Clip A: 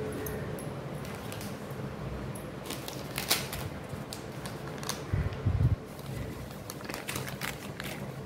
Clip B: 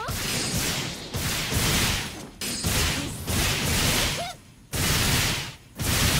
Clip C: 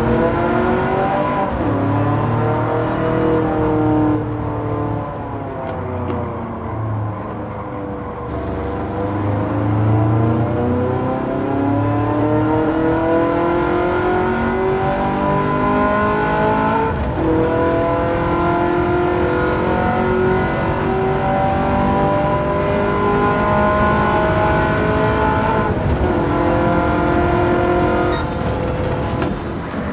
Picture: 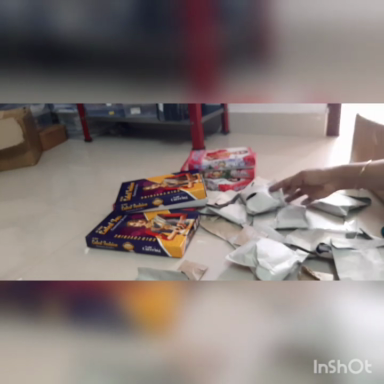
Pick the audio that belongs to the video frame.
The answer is A